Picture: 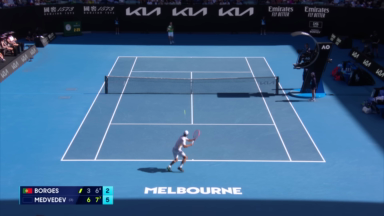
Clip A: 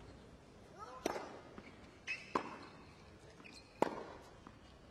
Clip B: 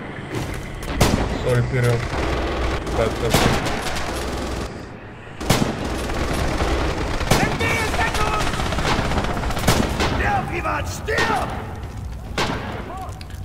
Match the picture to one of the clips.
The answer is A